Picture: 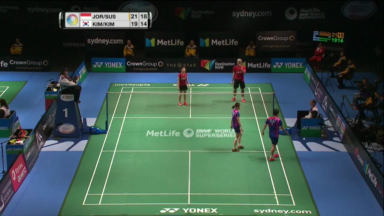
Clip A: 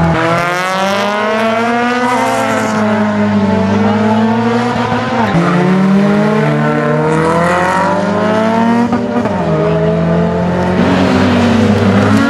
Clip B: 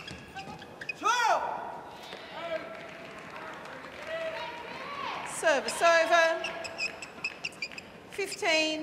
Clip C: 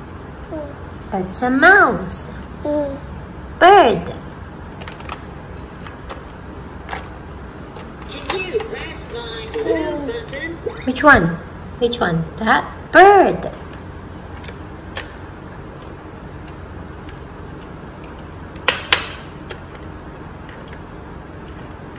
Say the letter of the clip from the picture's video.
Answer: B